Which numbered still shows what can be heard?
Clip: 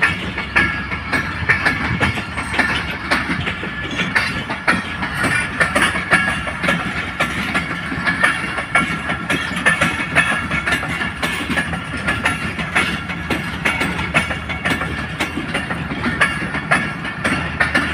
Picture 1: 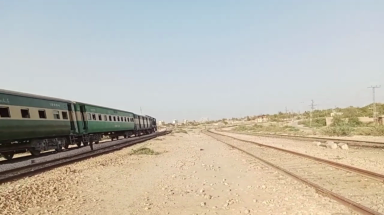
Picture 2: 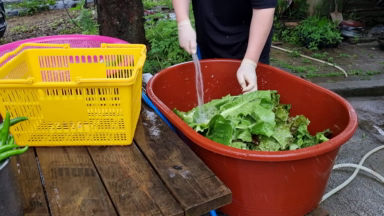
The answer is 1